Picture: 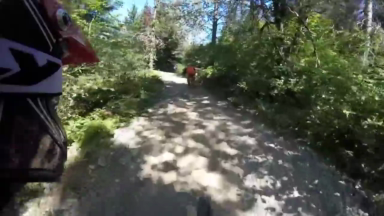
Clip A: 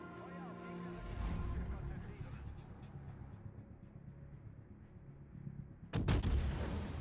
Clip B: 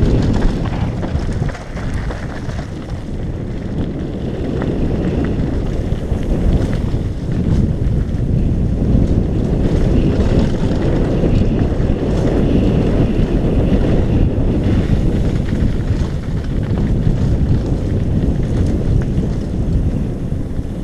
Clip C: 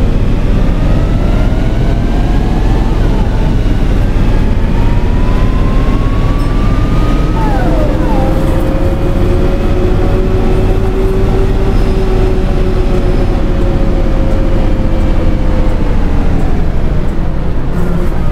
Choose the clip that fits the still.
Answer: B